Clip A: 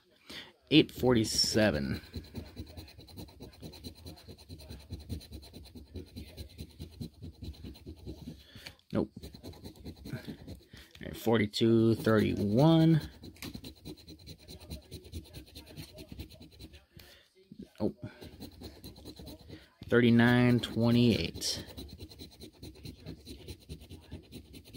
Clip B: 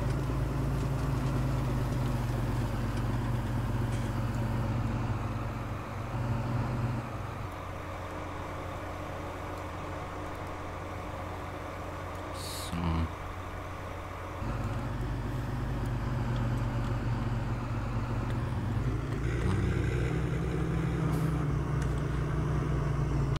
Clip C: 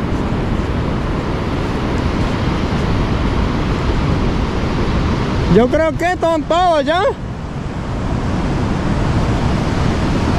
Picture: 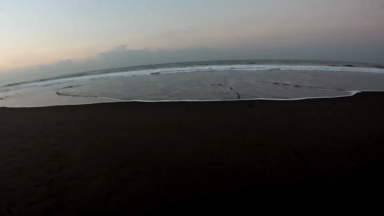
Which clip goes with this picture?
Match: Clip C